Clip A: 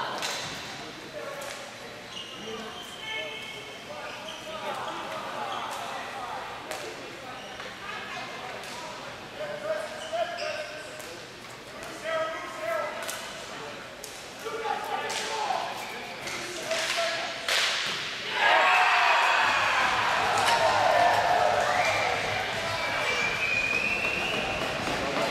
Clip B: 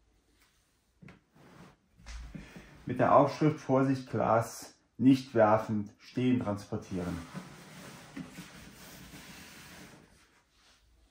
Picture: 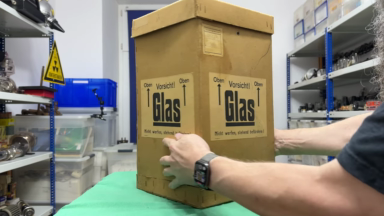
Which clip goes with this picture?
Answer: B